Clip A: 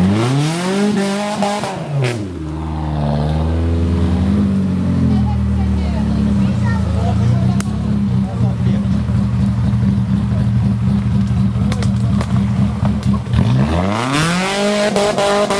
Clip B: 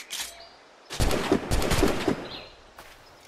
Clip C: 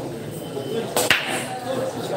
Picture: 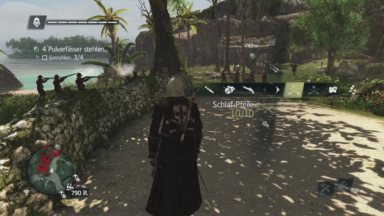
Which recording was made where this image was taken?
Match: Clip B